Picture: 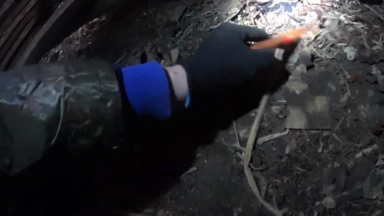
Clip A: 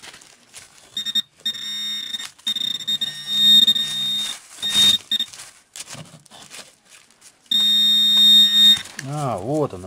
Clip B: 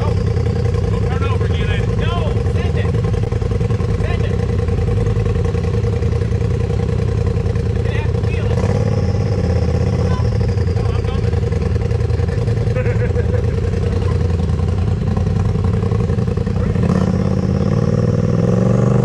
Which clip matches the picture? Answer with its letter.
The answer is A